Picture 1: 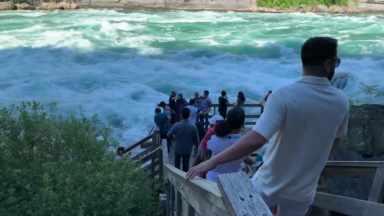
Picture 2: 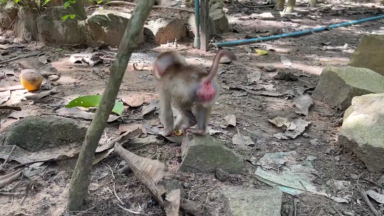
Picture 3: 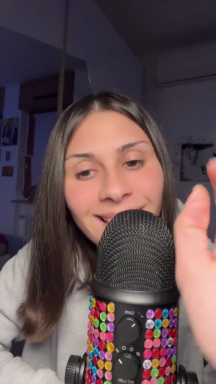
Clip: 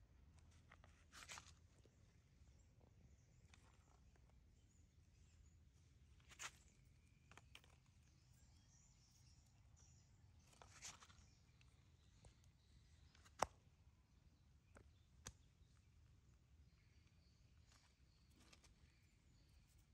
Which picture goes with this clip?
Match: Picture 2